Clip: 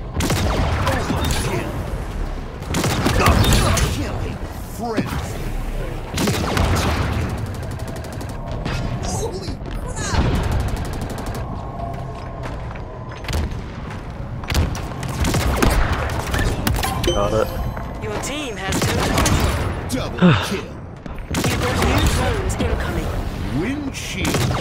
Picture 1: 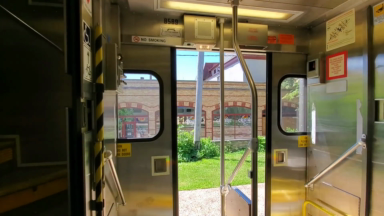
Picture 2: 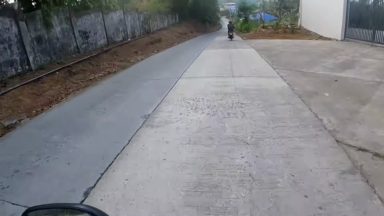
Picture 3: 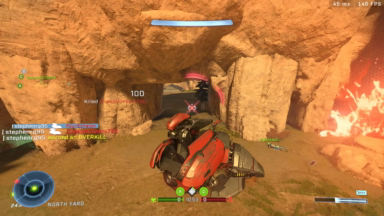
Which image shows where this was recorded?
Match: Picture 3